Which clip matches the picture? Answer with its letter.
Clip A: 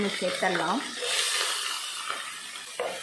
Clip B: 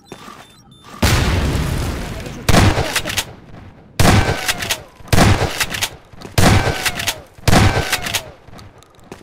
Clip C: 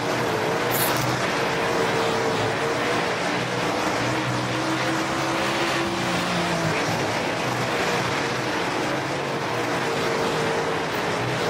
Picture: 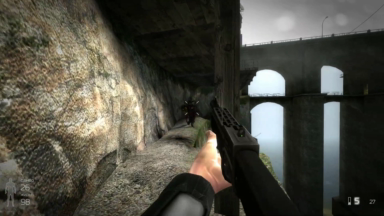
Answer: B